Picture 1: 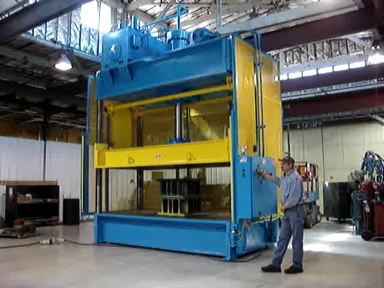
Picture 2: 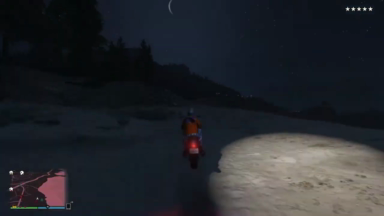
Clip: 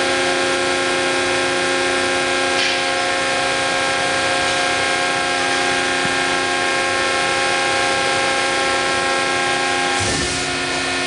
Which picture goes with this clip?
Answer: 1